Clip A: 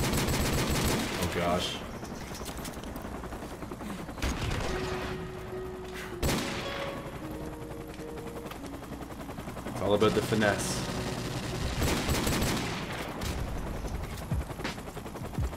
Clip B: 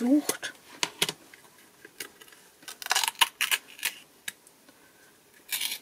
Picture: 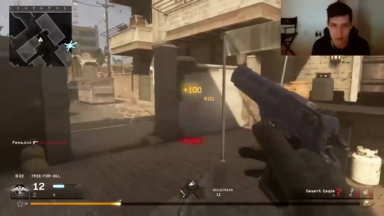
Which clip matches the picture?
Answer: A